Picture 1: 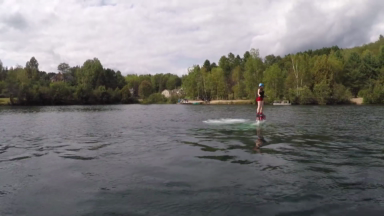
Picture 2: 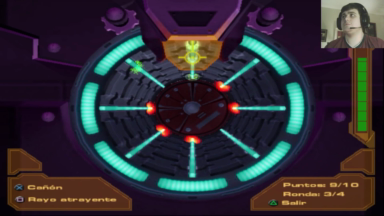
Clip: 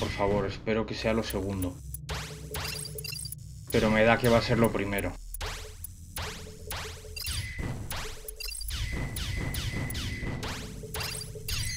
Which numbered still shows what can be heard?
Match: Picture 2